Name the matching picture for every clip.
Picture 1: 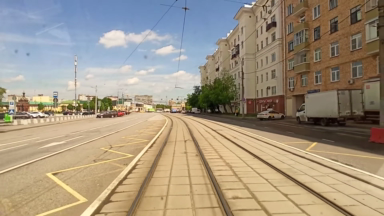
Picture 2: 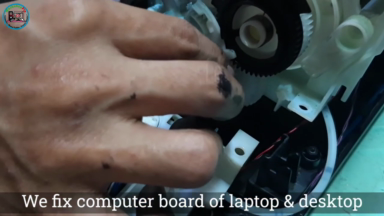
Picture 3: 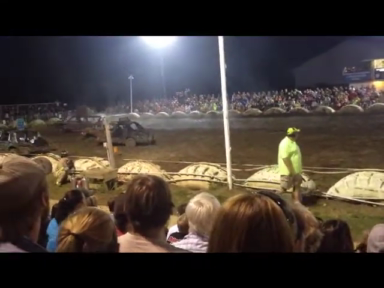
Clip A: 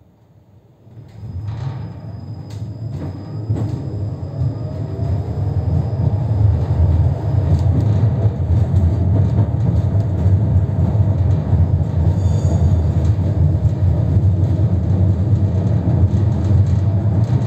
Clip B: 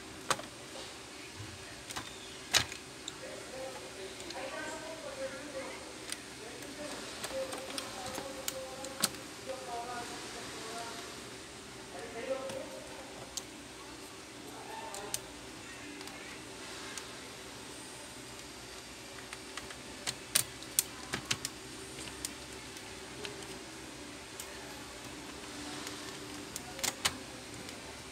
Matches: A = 1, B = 2